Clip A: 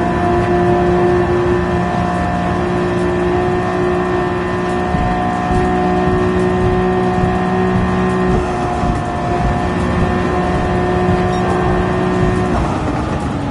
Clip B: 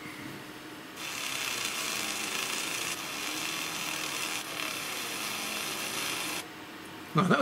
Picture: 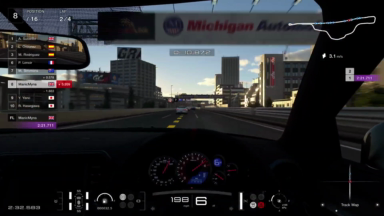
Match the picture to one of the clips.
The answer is A